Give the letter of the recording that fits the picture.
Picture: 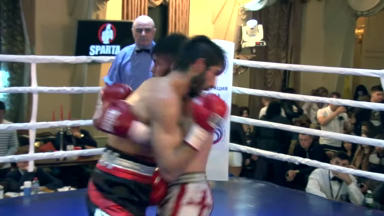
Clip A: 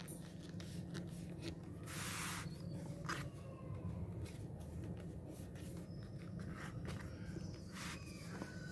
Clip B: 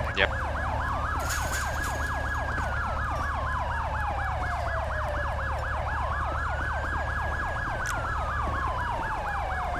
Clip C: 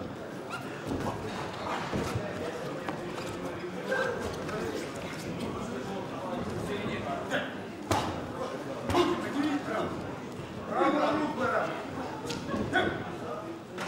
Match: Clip C